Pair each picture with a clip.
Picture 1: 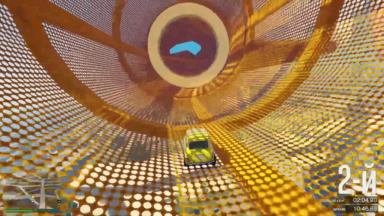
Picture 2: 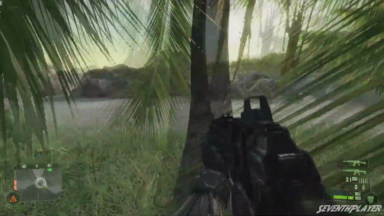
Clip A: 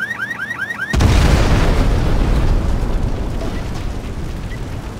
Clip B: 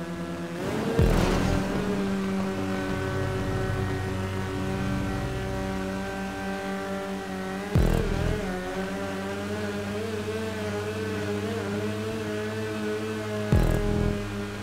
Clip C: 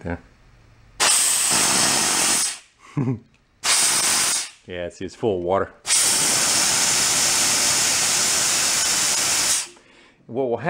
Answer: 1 B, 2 A